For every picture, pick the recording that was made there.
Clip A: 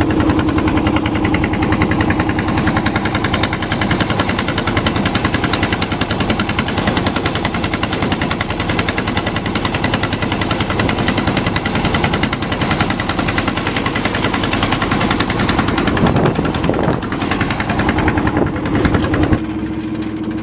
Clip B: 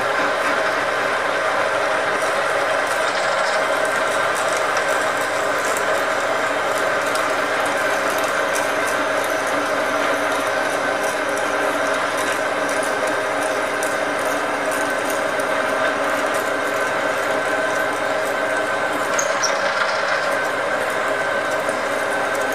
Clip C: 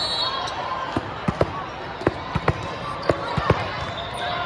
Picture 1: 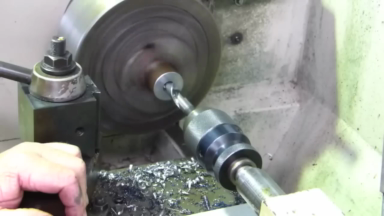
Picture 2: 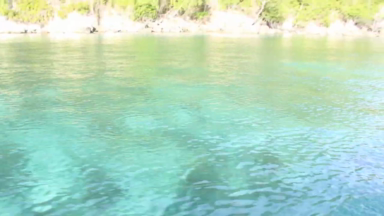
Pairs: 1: B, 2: A